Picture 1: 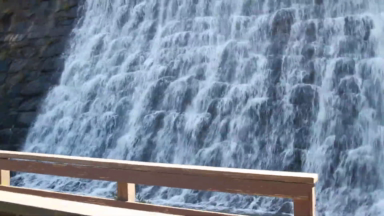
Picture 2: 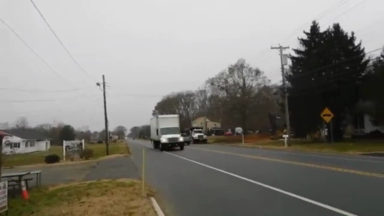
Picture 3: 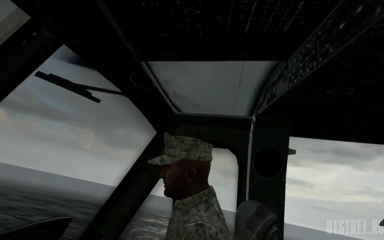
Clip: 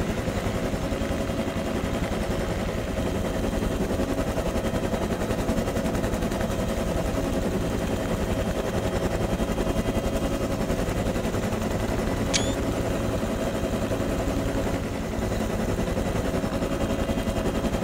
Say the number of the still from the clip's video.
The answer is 3